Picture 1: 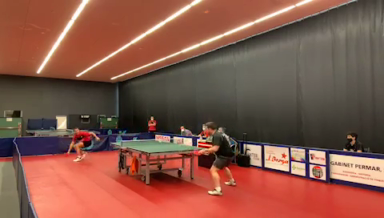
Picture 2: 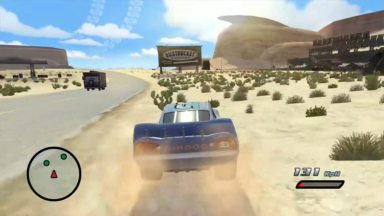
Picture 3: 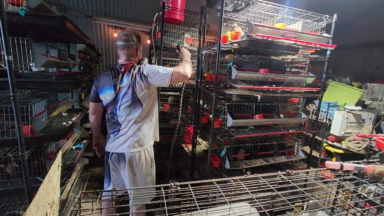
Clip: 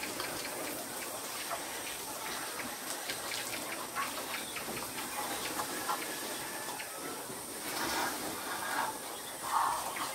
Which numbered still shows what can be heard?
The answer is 3